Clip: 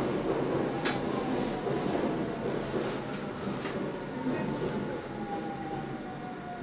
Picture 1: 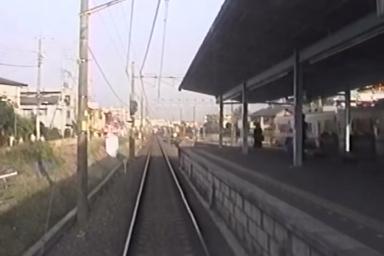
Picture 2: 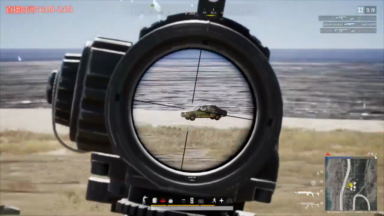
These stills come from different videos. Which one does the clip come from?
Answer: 1